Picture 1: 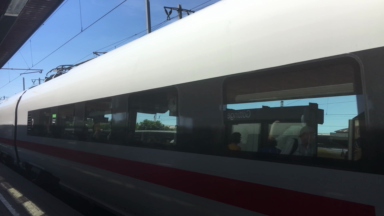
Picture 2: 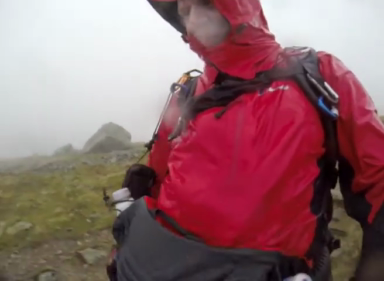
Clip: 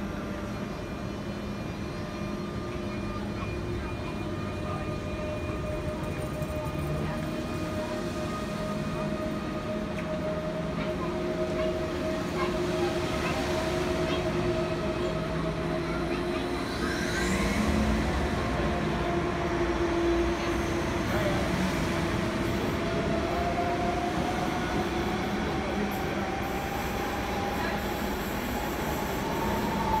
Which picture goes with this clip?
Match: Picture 1